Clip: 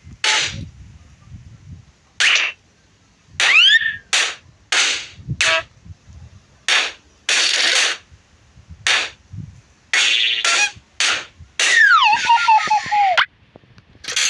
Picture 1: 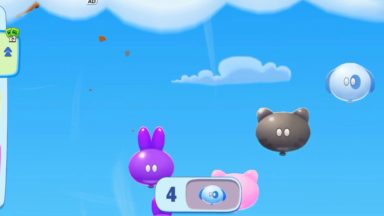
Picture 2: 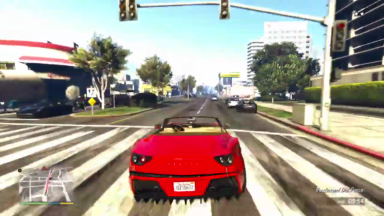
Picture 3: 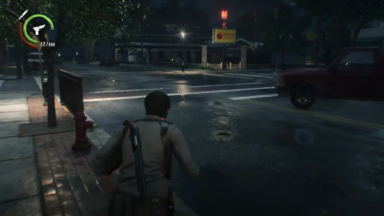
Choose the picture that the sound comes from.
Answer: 1